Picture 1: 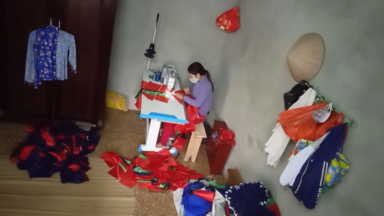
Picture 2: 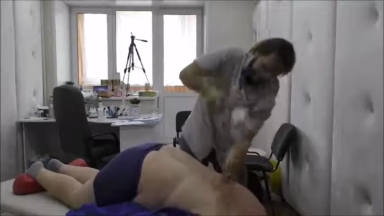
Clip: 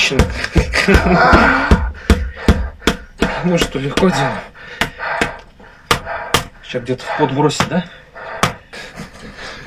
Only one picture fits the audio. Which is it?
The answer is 2